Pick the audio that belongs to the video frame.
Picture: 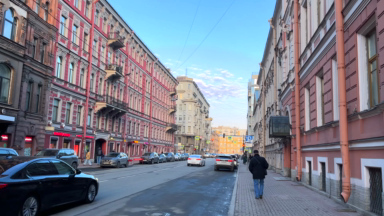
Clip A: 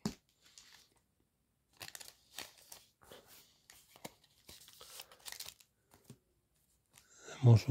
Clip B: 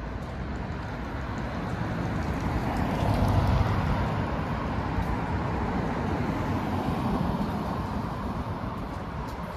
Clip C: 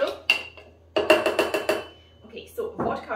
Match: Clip B